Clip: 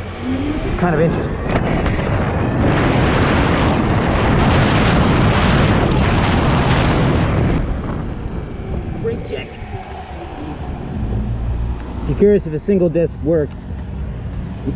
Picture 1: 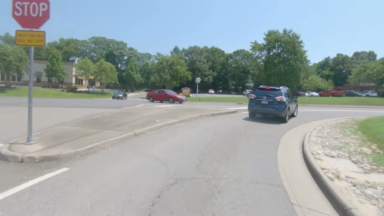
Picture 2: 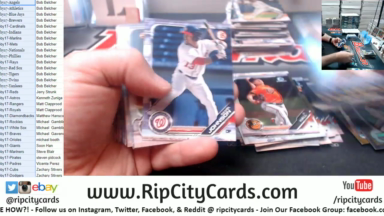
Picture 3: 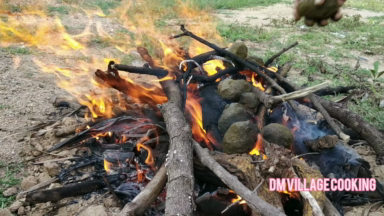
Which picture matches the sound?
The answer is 1